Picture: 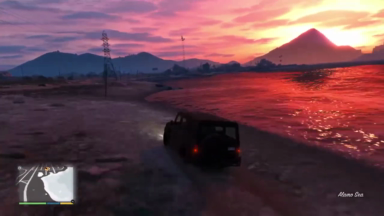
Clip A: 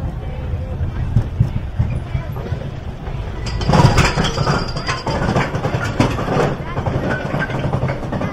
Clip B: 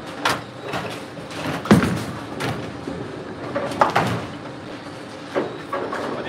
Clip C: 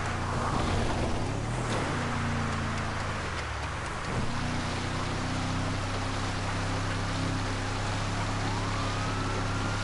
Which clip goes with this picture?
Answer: C